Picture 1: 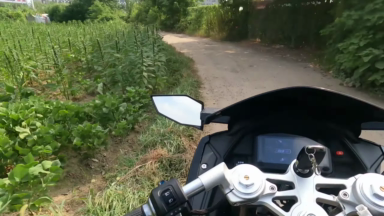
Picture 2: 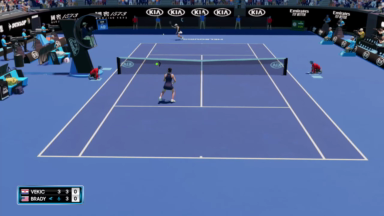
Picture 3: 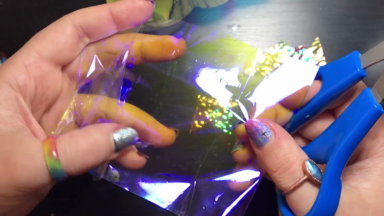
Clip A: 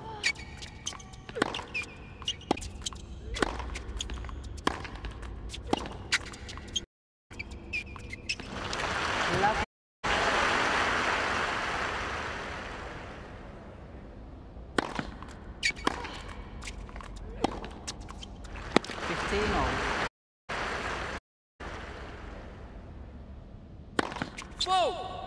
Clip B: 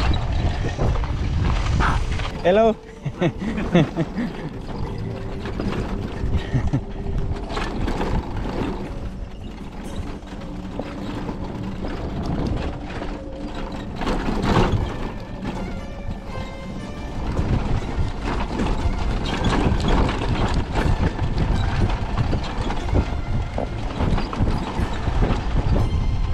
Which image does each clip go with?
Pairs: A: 2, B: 1